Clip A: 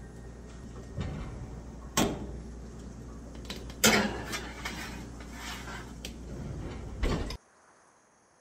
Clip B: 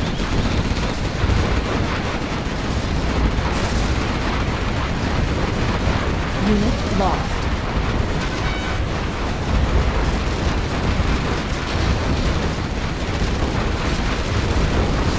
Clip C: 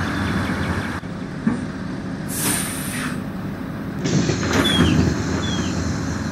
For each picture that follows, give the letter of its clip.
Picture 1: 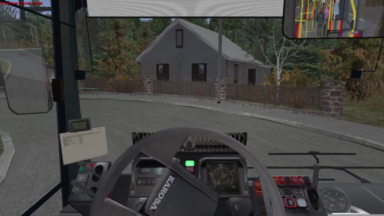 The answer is C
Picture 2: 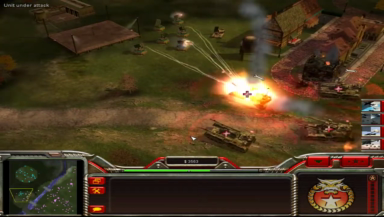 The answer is B